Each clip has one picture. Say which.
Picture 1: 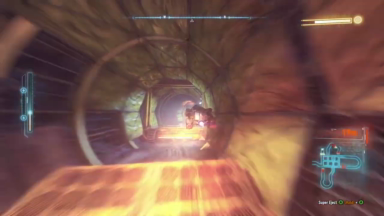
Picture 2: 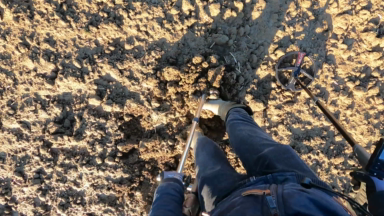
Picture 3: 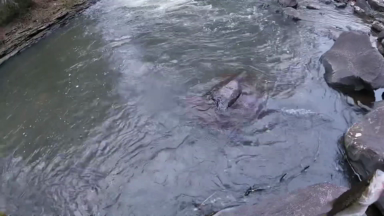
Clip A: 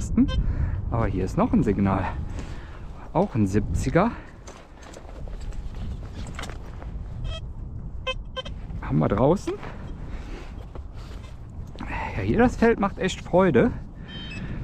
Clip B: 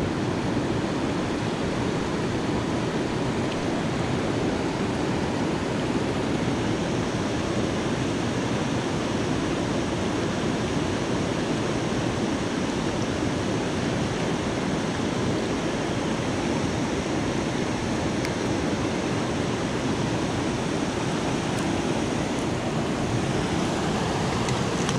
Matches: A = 2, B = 3